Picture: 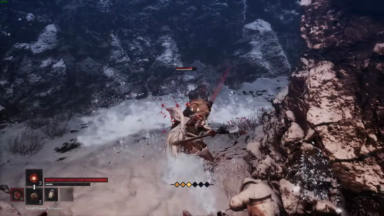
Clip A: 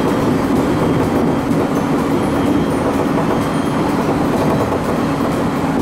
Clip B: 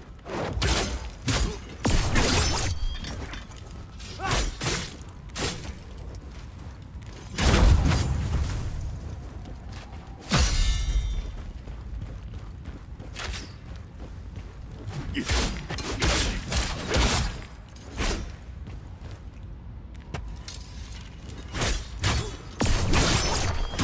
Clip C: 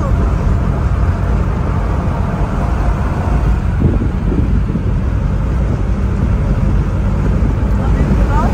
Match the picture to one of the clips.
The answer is B